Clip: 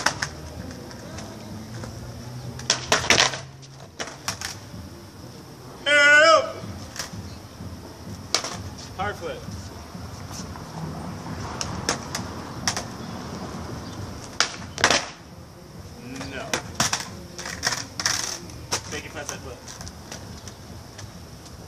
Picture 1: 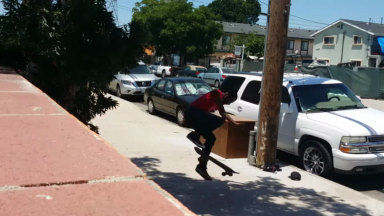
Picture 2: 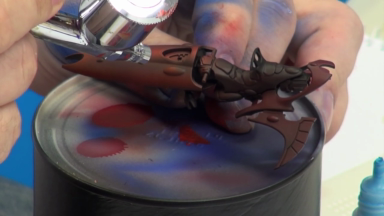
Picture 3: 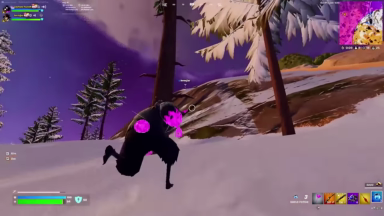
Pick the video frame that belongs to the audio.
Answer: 1